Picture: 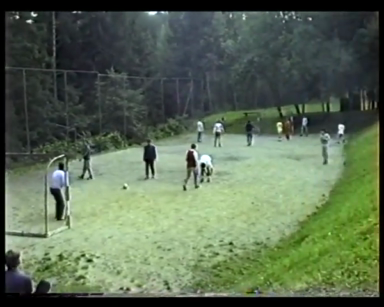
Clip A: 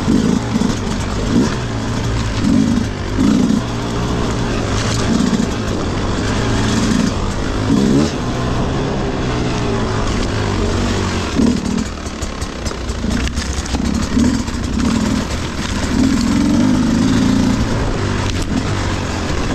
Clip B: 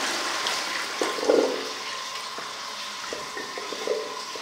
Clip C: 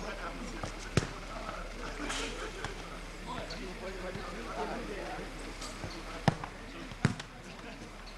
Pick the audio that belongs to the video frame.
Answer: C